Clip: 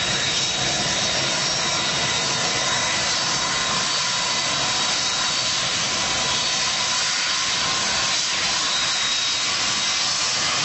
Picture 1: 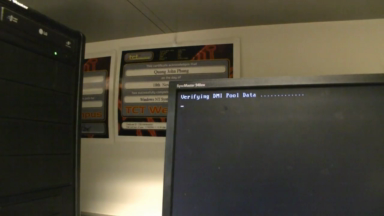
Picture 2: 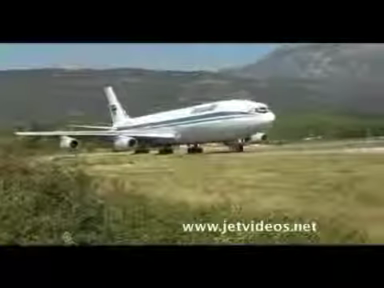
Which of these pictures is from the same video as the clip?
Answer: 2